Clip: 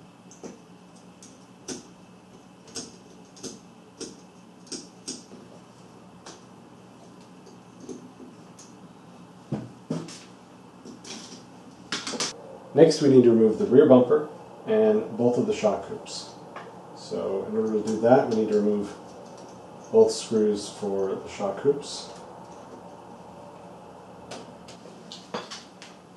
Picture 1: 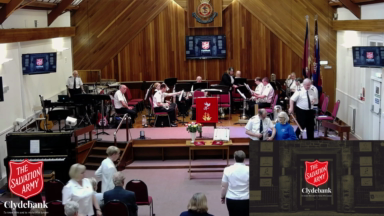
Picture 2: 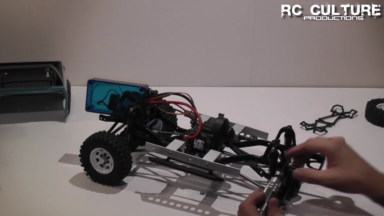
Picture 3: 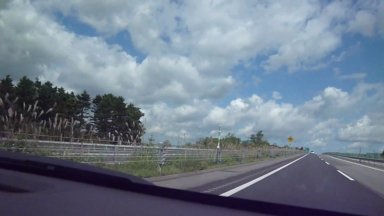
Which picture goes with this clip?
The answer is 2